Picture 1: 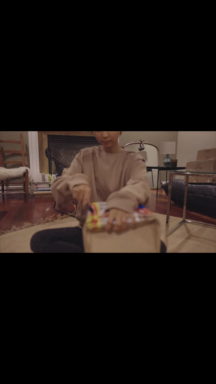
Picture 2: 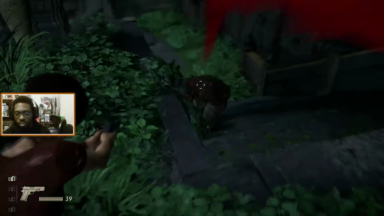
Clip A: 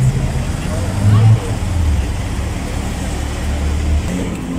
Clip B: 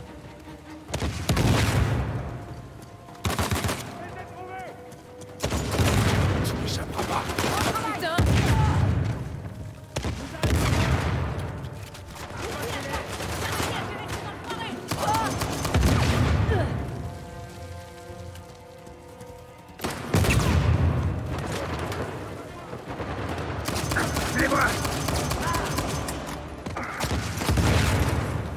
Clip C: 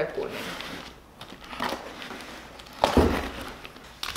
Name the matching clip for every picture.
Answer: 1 C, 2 B